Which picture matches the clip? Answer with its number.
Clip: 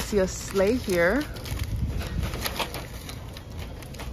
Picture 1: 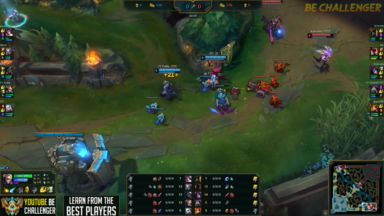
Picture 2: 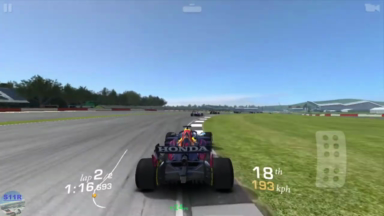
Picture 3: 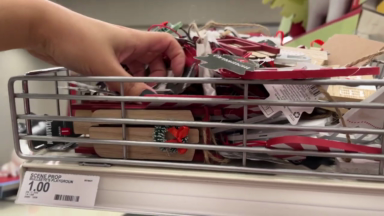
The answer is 3